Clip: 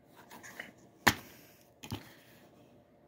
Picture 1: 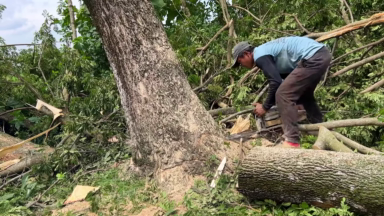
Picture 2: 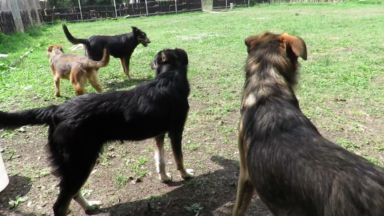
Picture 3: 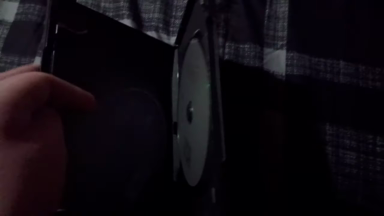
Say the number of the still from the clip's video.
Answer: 3